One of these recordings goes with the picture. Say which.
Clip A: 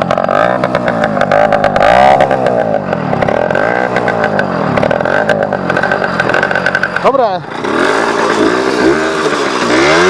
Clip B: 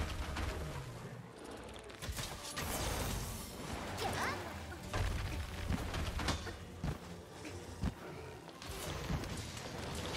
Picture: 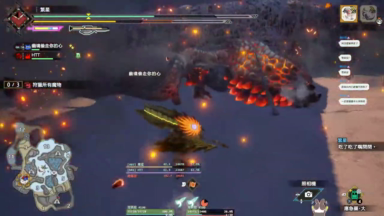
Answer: B